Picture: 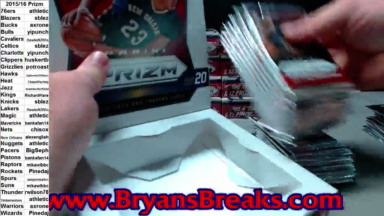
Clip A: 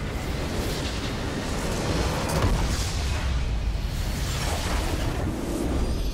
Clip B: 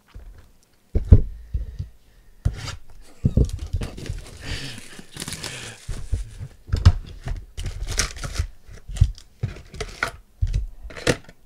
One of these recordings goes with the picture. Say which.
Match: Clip B